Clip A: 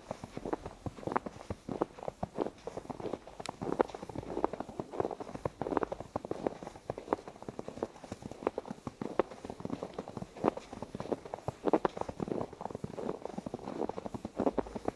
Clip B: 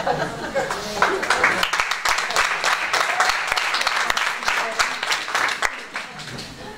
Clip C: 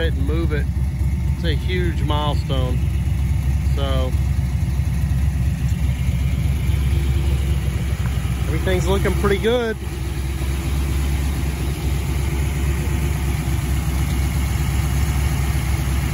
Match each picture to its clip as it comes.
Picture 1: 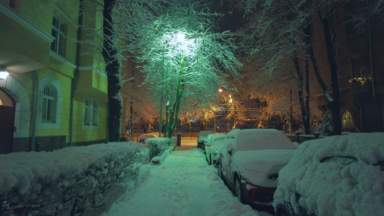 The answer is A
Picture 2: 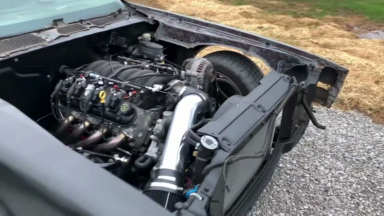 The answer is C